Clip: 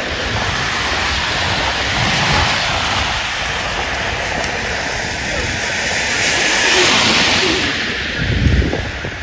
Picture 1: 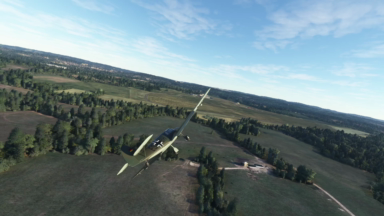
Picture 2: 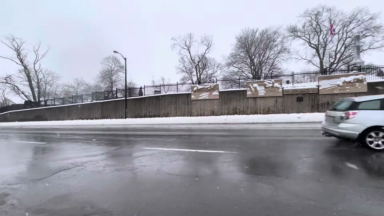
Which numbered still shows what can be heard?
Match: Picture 2